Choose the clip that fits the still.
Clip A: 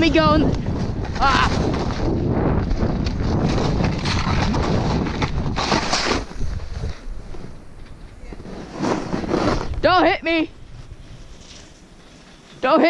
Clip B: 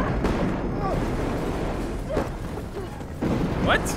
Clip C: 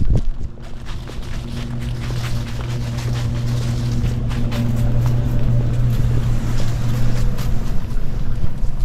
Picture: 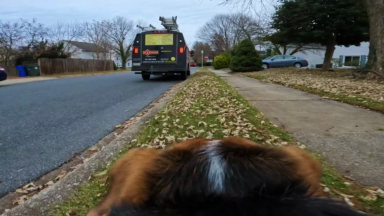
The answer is C